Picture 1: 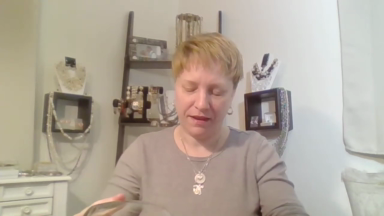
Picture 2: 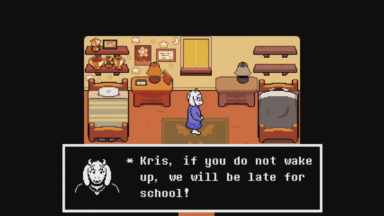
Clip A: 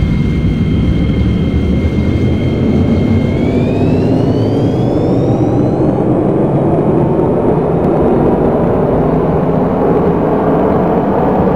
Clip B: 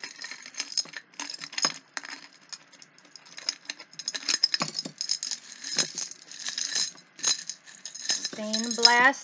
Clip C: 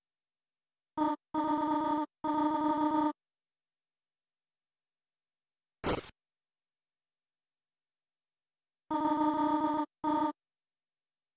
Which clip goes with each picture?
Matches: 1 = B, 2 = C